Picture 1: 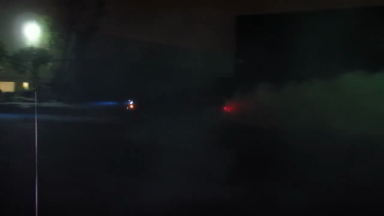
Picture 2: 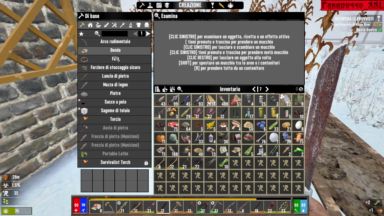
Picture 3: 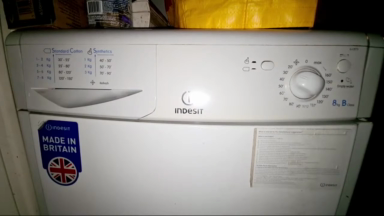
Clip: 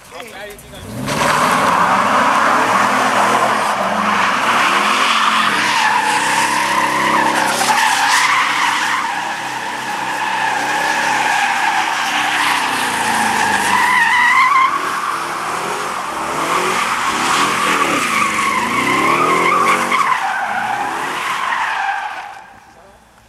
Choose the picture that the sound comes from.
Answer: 1